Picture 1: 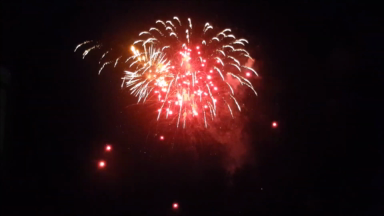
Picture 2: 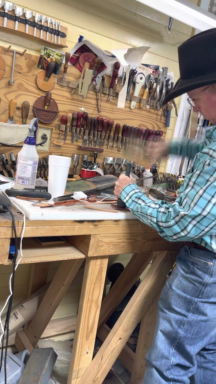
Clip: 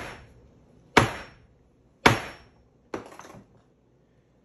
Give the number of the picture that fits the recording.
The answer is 2